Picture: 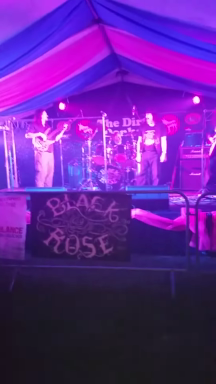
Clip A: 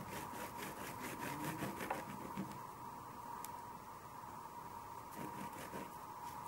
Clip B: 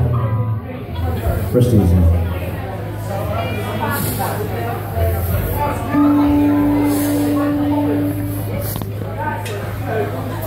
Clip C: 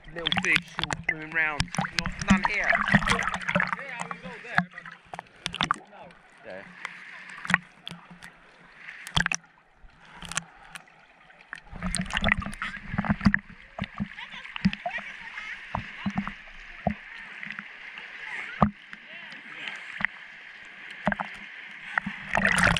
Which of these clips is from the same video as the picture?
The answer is B